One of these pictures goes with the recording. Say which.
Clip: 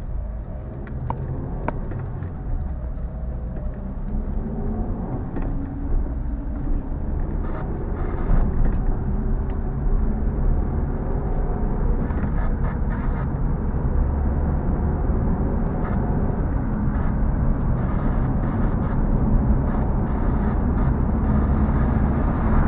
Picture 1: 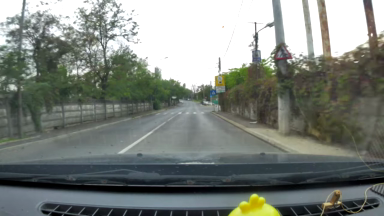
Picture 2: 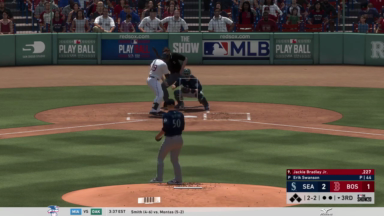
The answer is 1